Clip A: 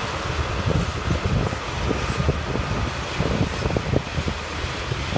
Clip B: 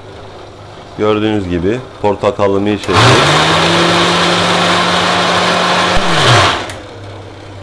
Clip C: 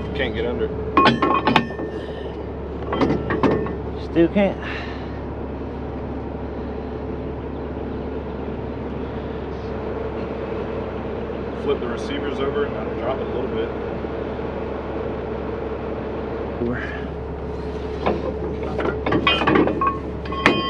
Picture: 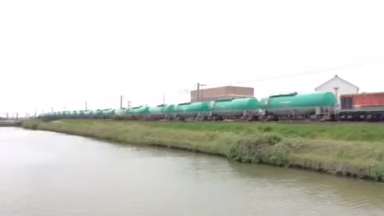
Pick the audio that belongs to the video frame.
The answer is A